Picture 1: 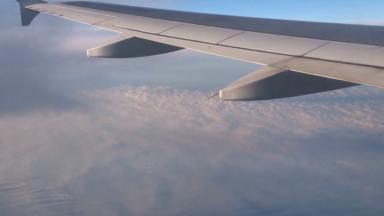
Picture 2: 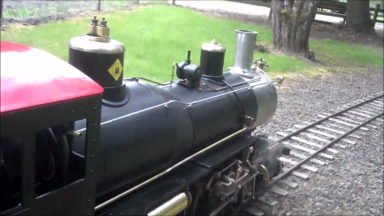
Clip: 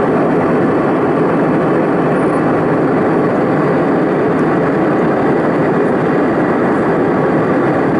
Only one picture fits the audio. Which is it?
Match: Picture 1